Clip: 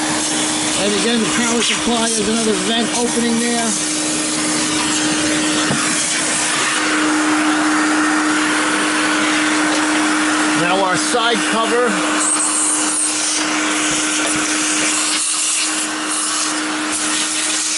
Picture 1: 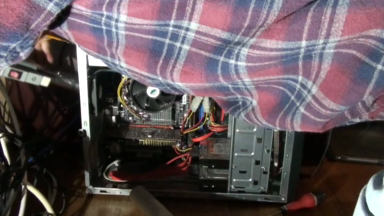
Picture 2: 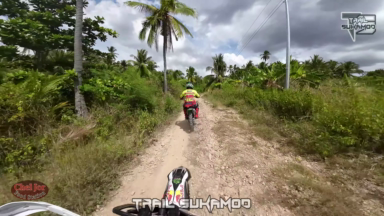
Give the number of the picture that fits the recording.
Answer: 1